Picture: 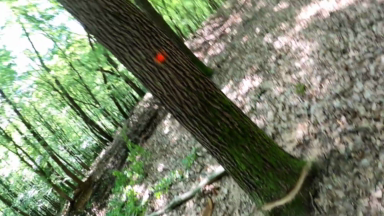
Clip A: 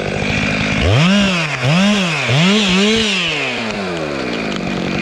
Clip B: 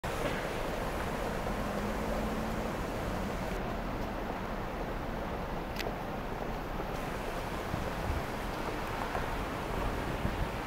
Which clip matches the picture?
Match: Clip A